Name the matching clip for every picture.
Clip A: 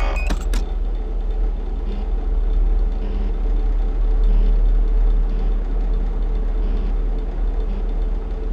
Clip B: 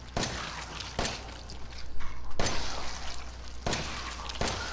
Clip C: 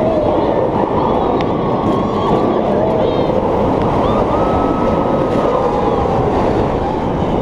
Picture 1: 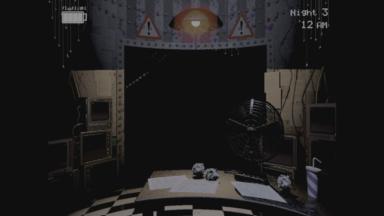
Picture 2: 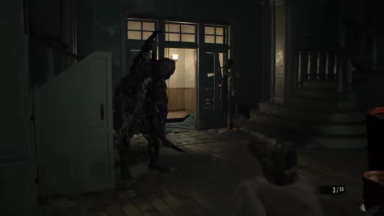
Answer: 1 A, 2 B